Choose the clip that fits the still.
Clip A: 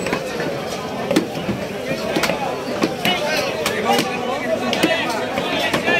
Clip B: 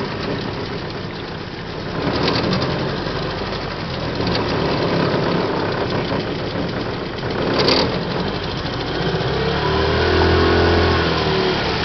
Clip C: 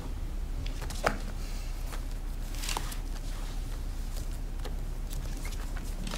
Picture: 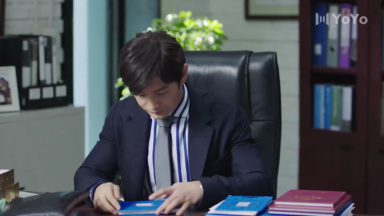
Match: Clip C